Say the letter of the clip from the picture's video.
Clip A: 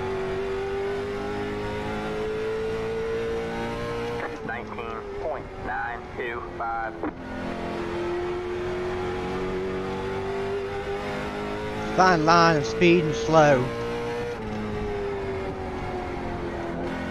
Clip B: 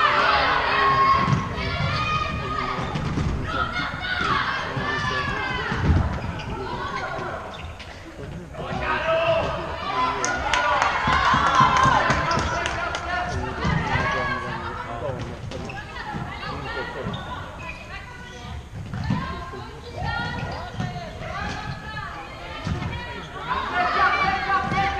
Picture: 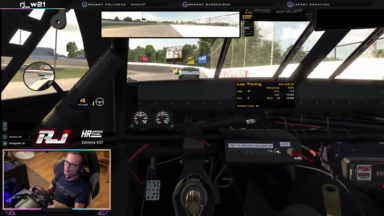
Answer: A